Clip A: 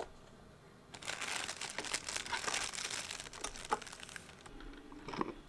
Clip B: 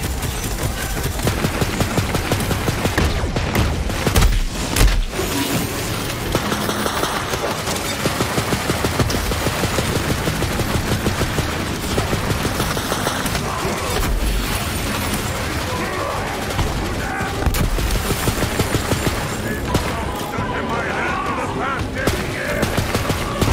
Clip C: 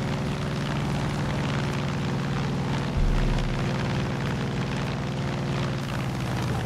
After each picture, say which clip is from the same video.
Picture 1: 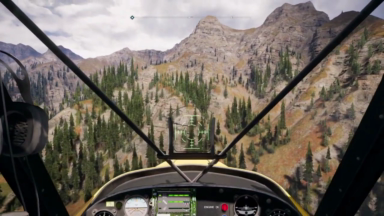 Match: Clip C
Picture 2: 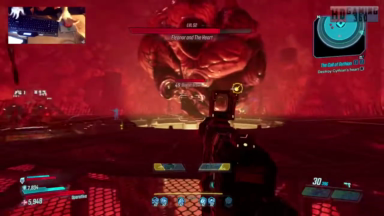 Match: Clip B